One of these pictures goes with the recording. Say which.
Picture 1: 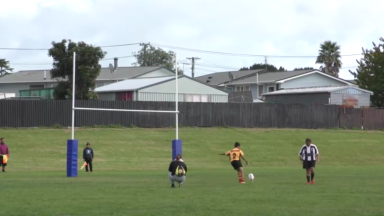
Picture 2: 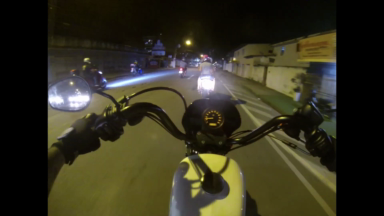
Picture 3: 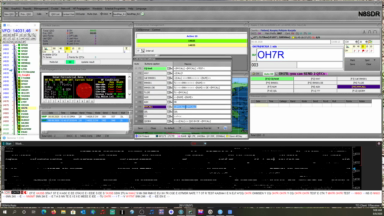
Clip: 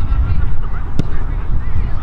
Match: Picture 1